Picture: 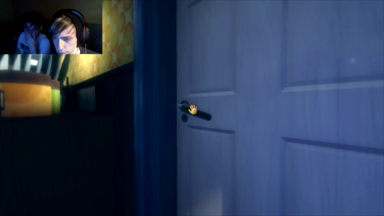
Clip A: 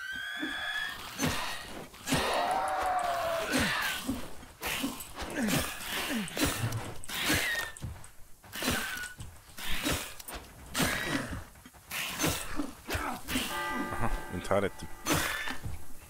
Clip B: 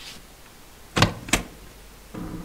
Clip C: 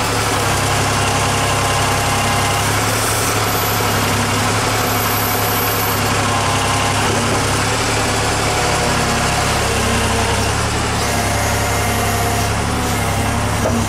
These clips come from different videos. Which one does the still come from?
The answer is B